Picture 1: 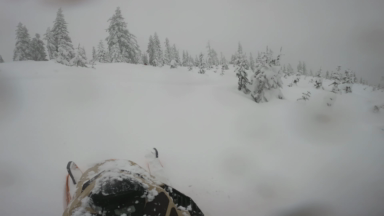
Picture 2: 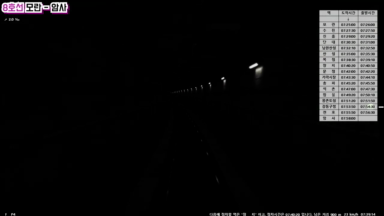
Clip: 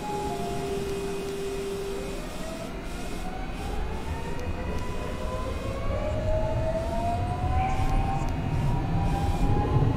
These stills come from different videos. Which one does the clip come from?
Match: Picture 2